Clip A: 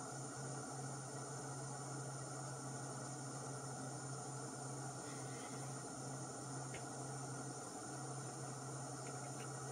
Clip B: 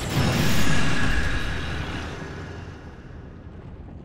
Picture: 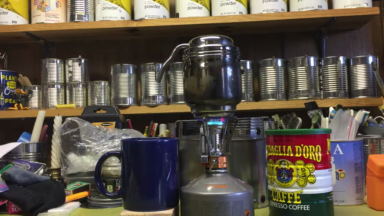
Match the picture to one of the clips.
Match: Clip A